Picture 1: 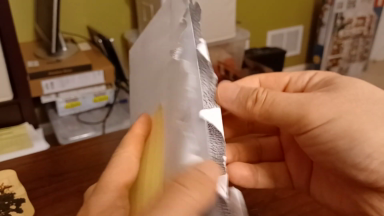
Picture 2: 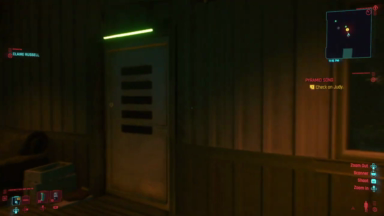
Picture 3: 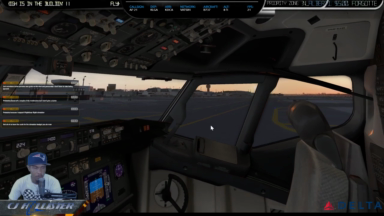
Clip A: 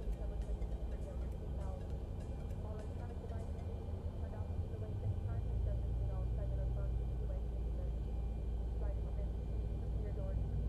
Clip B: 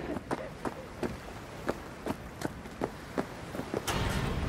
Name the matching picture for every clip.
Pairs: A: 3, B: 2